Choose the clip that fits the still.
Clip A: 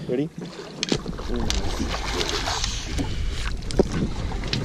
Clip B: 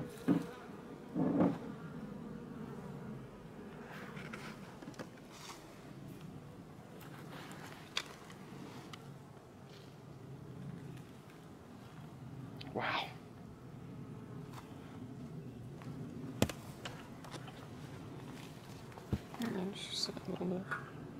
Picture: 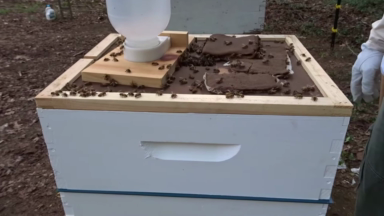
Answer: B